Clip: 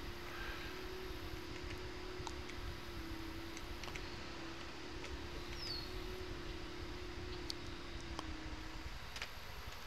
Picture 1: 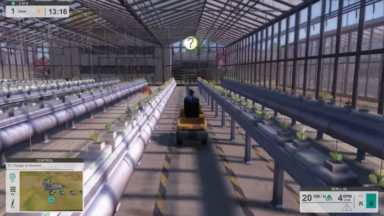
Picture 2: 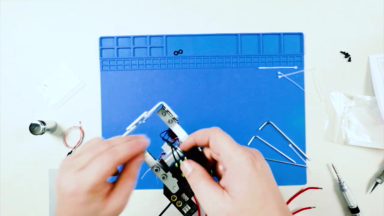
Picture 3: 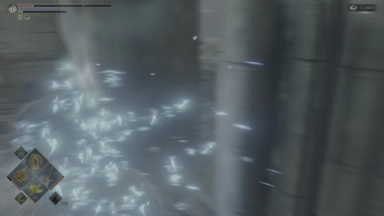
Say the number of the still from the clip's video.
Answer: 1